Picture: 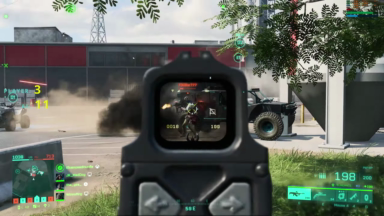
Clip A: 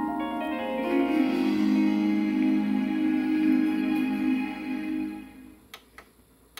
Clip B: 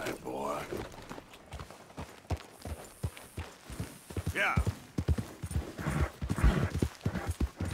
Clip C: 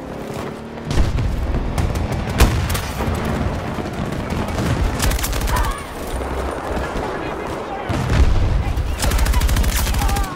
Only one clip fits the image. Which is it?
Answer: C